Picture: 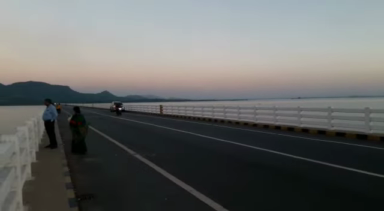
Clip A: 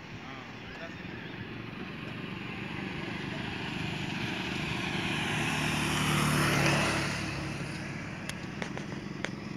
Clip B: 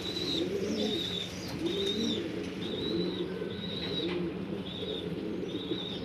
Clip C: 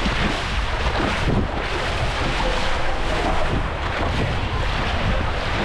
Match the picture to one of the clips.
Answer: A